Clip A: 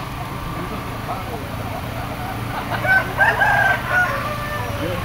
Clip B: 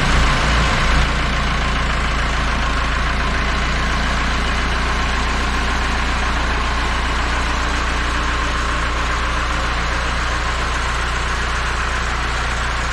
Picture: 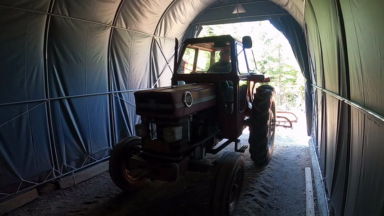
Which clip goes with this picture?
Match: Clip B